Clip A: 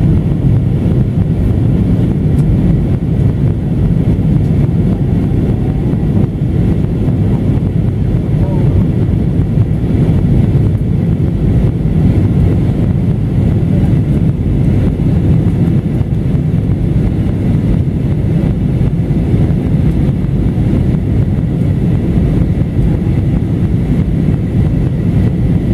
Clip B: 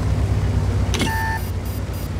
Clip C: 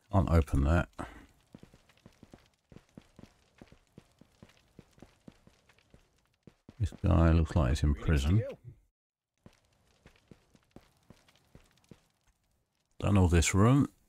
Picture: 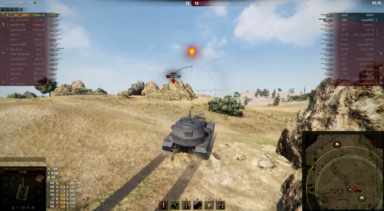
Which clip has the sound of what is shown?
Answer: B